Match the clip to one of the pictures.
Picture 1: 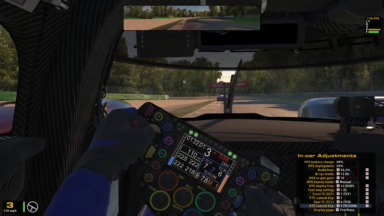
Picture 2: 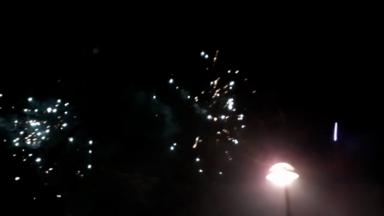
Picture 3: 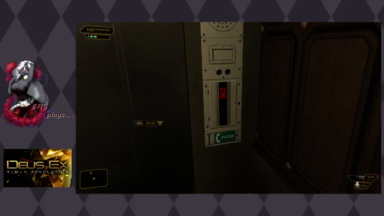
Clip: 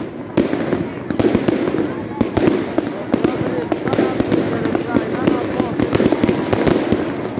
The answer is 2